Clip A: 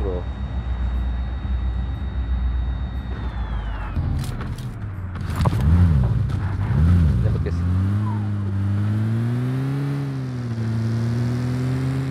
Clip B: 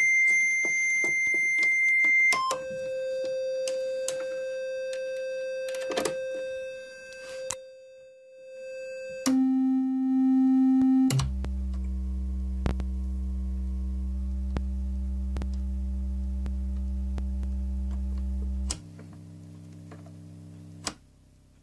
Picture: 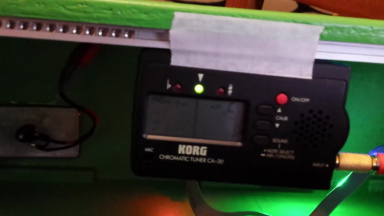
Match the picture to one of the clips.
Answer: B